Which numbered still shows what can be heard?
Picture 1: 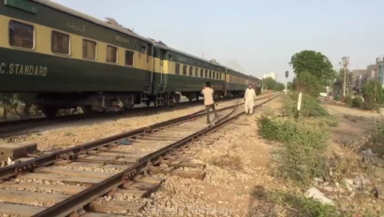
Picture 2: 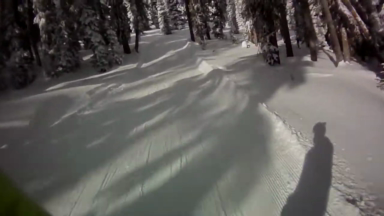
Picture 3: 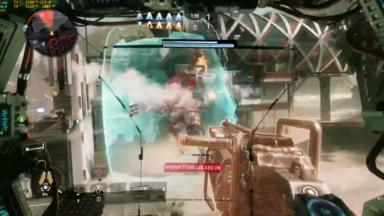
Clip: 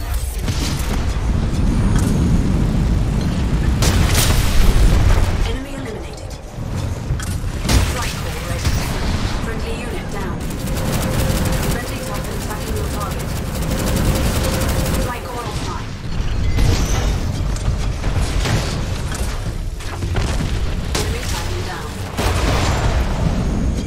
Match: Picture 3